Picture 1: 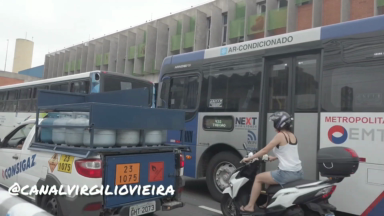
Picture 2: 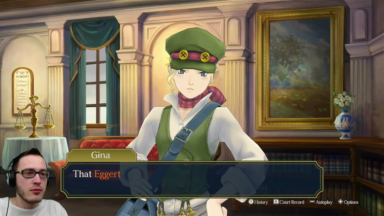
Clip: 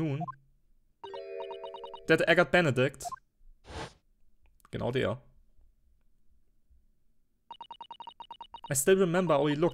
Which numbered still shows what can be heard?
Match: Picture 2